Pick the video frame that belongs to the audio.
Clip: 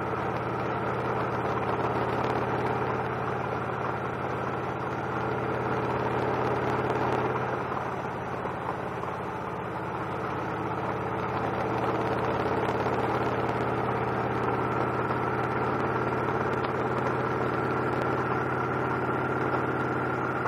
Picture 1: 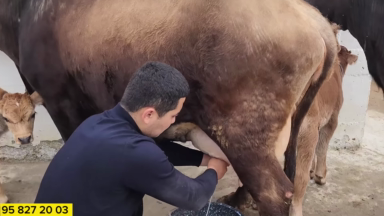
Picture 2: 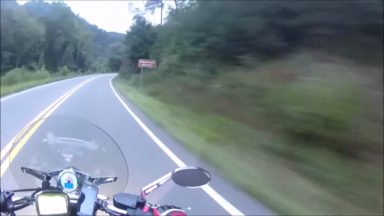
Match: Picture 2